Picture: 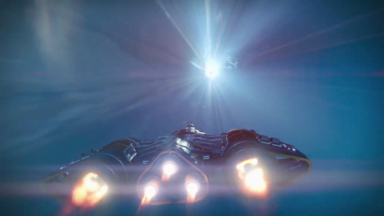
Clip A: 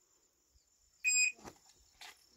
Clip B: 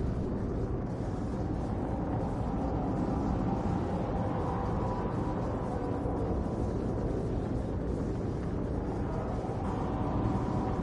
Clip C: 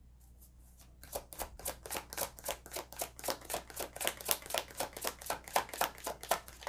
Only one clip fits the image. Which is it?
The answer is B